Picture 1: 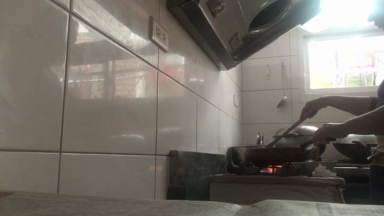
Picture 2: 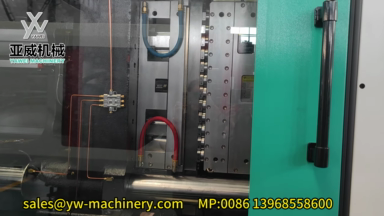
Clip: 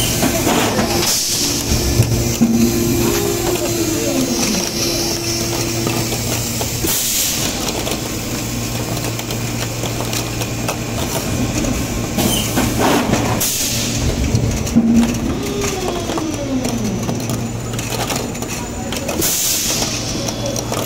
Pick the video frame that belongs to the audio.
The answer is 2